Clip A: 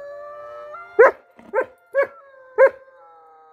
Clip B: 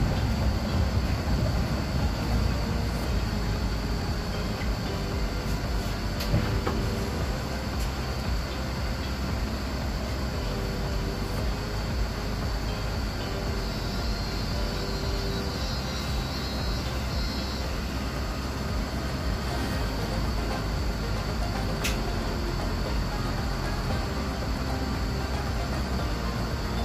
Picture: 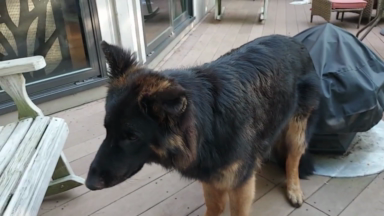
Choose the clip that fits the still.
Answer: A